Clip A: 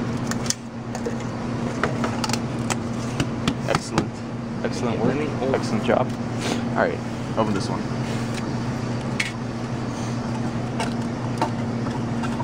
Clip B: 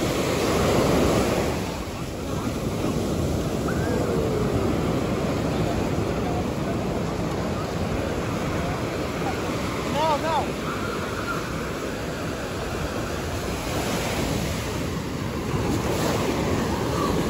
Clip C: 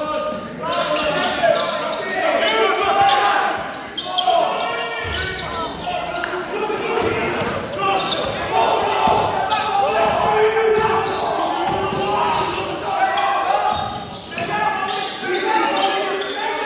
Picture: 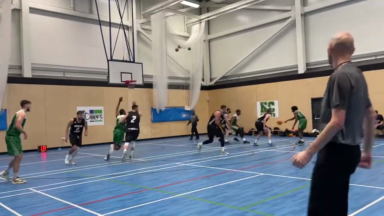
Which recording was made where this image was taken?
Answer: C